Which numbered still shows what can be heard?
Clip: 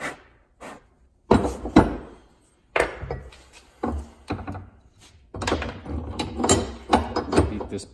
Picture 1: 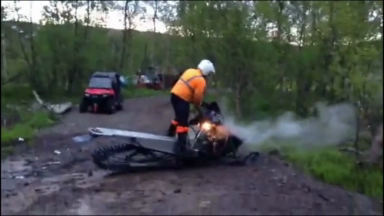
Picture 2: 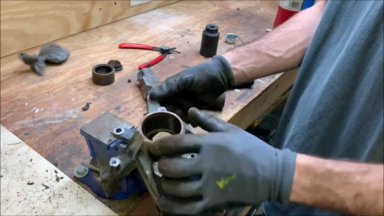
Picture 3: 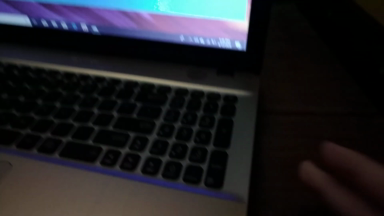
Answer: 2